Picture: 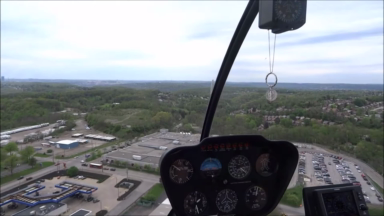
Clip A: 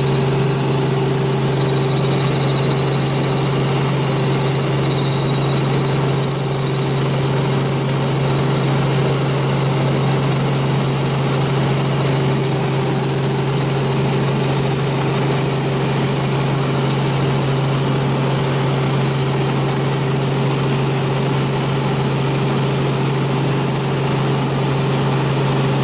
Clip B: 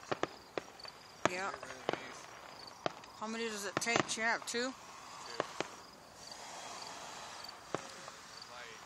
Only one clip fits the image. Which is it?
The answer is A